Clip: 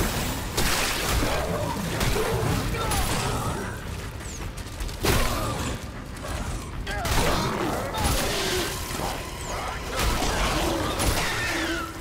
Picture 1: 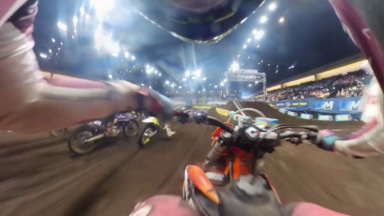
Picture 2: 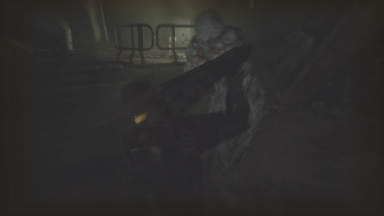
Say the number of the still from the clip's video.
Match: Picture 2